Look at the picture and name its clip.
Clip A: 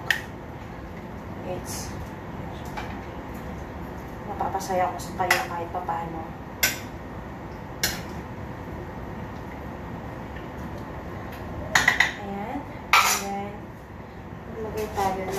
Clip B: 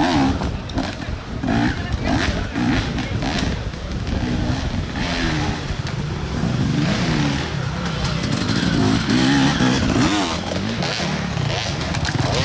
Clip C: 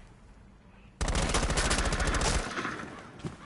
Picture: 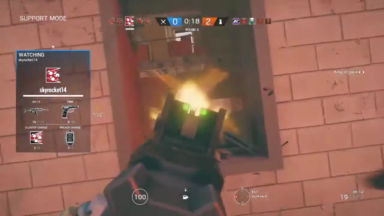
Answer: C